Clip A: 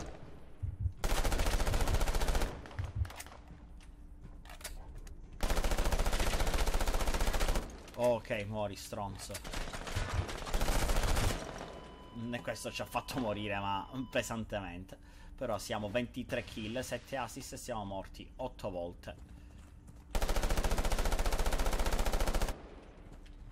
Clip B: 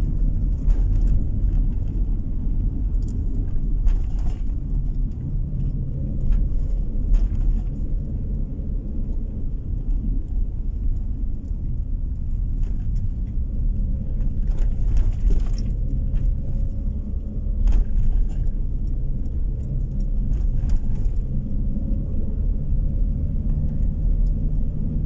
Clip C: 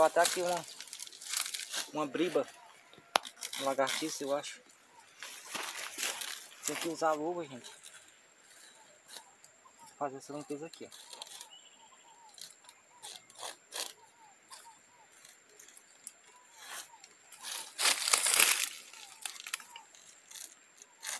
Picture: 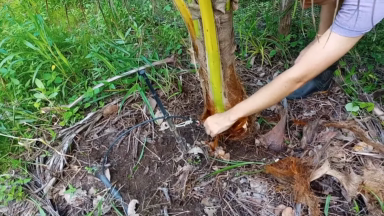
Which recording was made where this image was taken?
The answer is C